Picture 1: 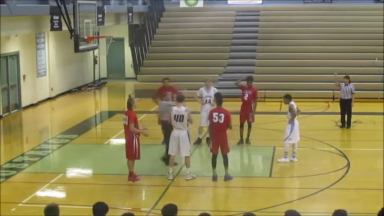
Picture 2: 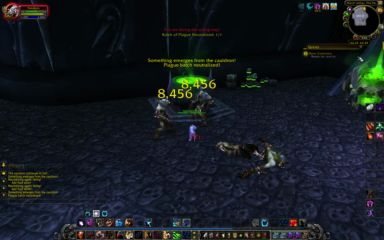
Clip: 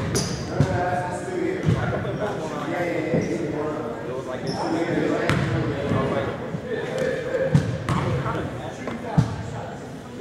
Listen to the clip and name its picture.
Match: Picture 1